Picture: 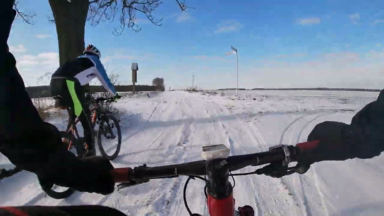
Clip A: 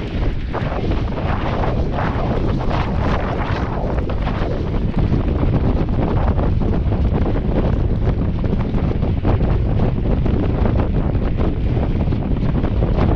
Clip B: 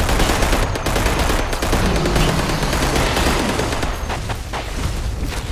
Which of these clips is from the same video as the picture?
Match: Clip A